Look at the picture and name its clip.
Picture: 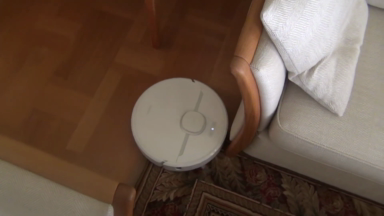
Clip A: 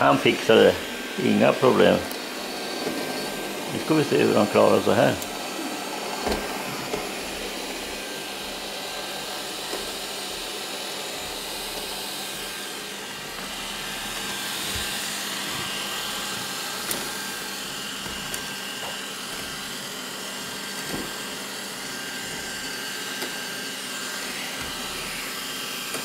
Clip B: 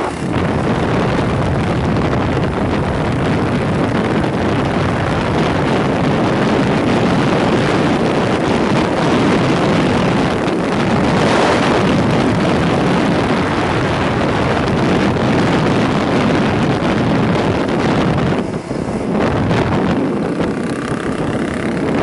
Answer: A